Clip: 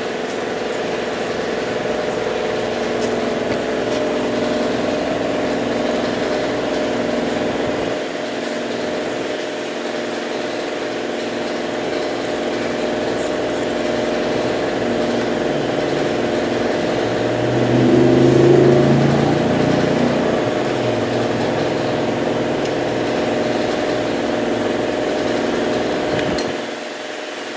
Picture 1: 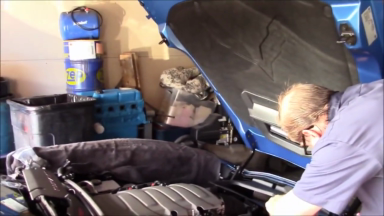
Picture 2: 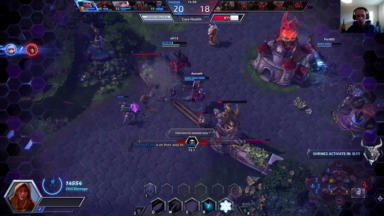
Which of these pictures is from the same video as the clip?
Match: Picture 1